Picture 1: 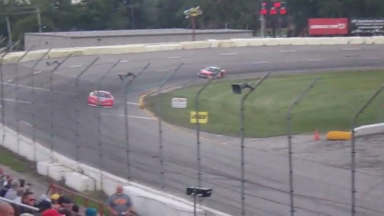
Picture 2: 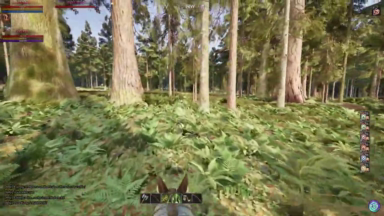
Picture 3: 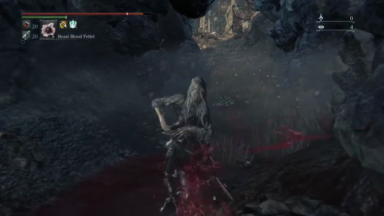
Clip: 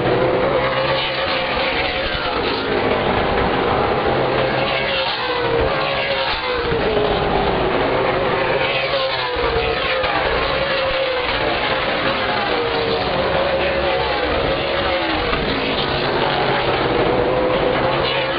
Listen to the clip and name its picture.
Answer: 1